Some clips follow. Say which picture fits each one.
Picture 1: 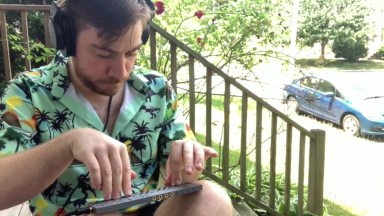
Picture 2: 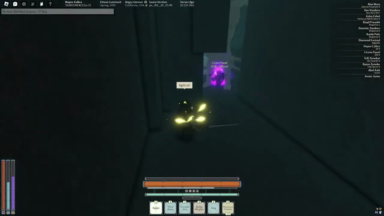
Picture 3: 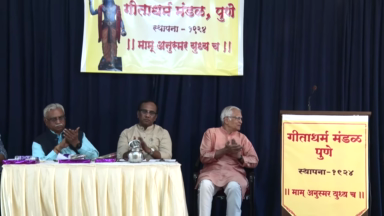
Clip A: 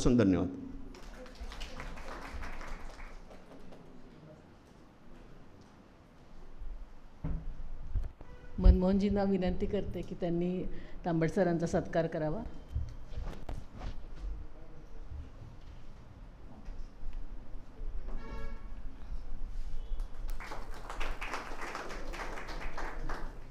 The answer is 3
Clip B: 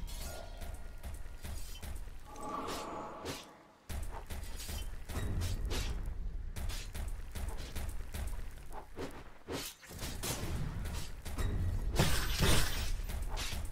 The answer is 2